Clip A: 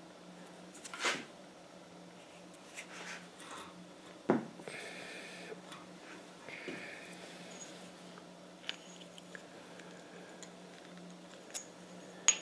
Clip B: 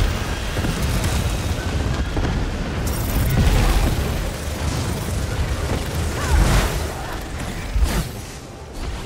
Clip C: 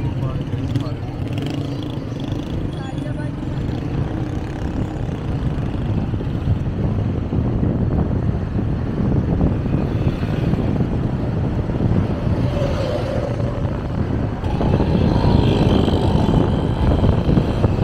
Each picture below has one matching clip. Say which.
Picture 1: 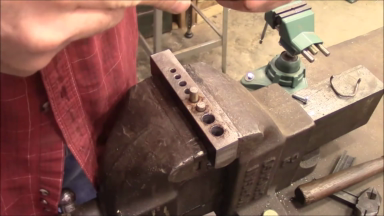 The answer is A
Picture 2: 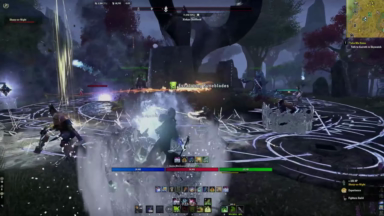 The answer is B